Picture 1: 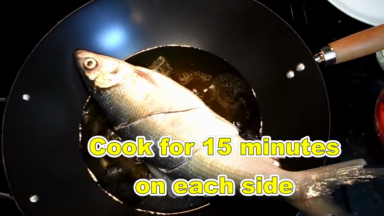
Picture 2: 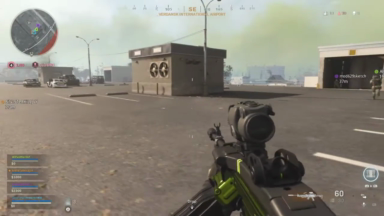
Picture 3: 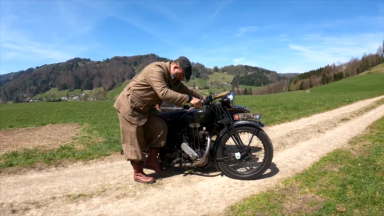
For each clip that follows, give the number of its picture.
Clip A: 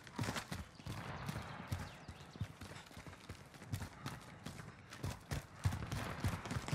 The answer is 2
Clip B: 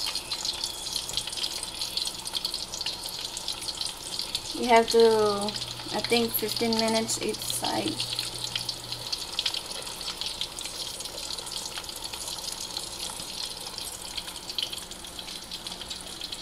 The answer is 1